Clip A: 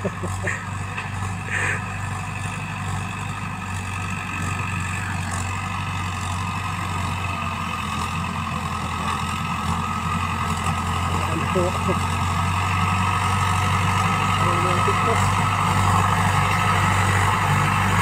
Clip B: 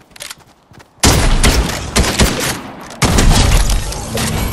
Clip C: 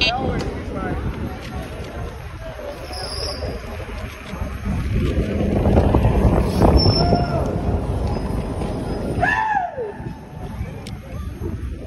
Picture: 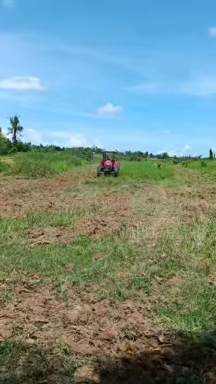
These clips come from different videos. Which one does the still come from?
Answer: A